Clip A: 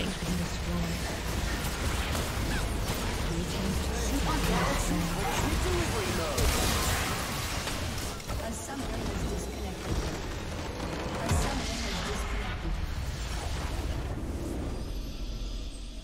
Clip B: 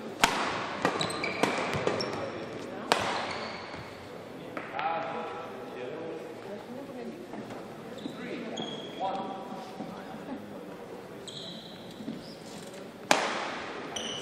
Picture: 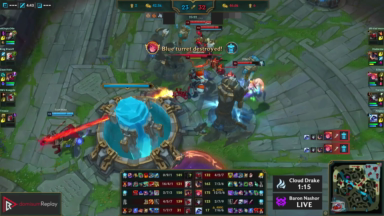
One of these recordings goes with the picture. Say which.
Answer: A